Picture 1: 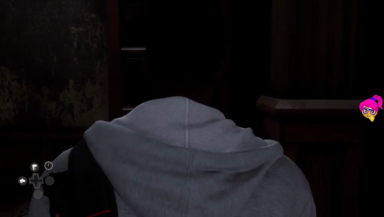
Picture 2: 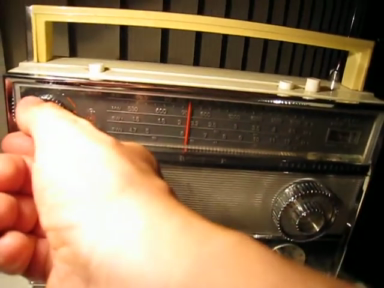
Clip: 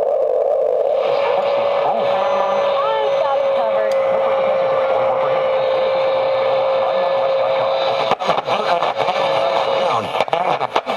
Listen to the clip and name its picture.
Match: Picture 2